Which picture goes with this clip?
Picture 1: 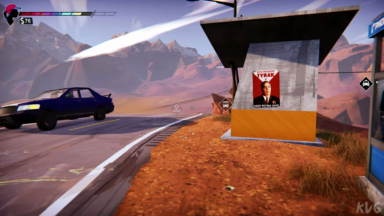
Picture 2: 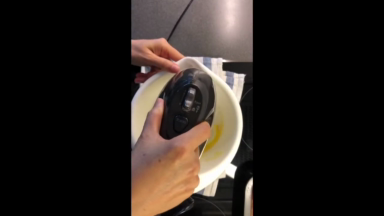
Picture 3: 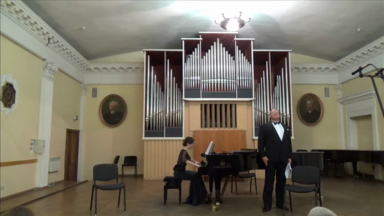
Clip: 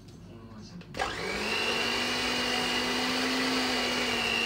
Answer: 2